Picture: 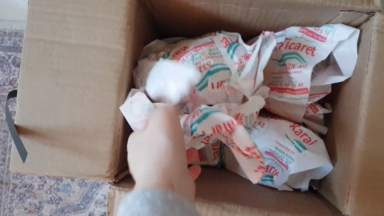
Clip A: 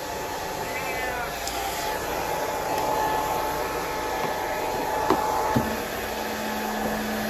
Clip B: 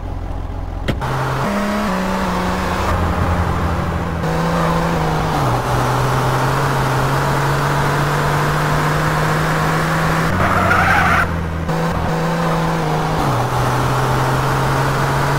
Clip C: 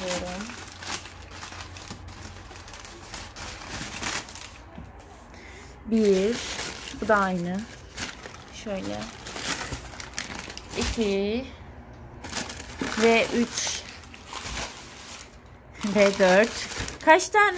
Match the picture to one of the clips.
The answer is C